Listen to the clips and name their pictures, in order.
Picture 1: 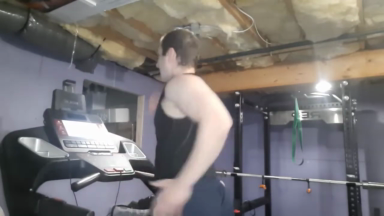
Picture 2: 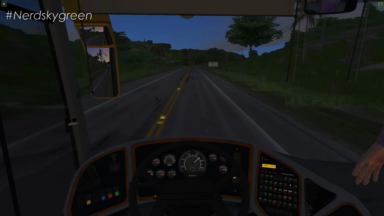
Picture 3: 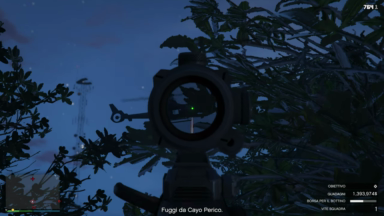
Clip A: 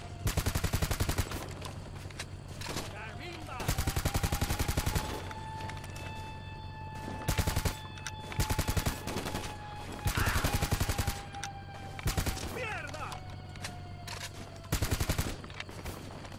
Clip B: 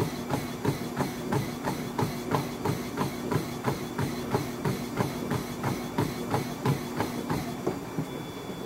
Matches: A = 3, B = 1